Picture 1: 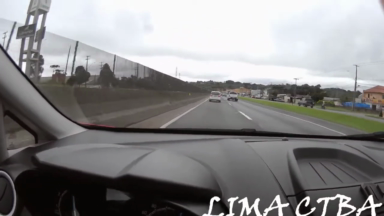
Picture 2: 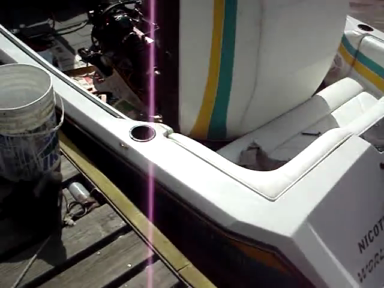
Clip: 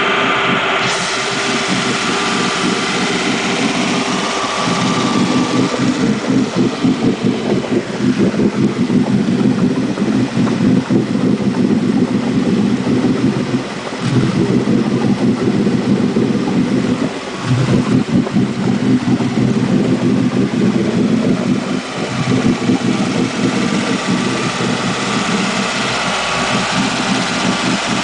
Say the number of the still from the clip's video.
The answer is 2